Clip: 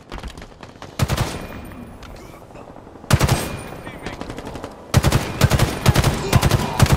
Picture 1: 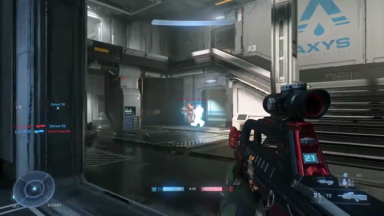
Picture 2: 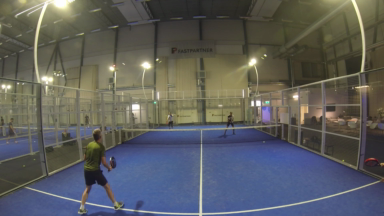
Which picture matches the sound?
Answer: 1